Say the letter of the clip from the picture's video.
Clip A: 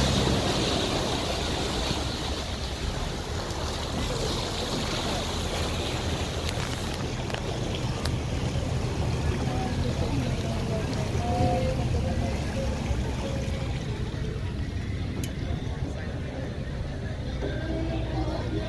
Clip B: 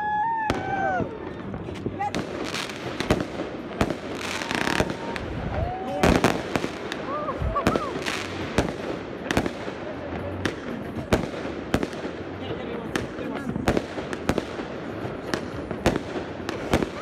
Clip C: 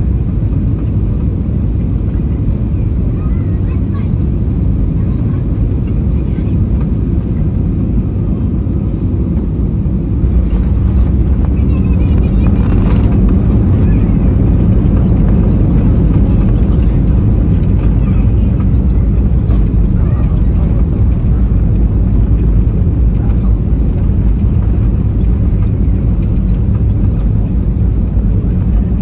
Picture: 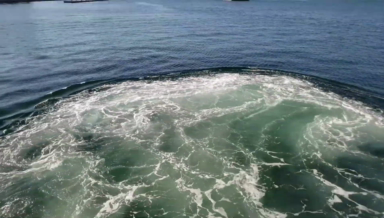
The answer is A